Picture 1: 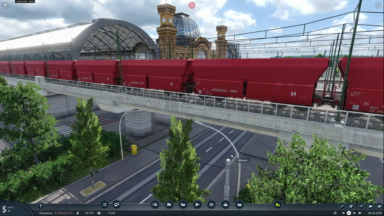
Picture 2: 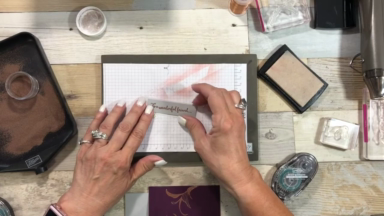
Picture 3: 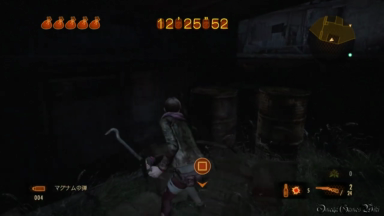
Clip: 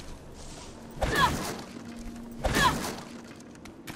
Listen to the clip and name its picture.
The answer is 3